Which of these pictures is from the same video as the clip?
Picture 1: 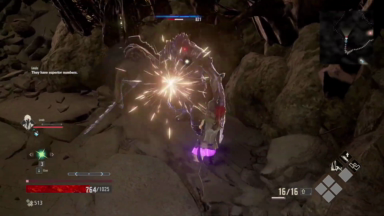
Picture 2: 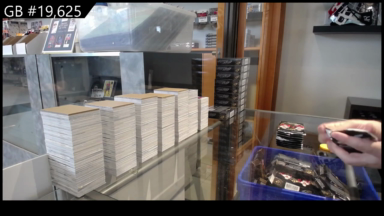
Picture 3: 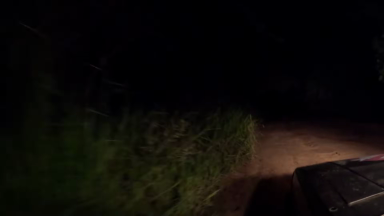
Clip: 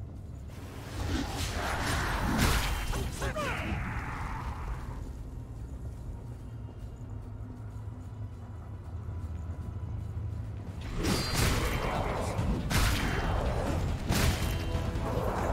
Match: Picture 1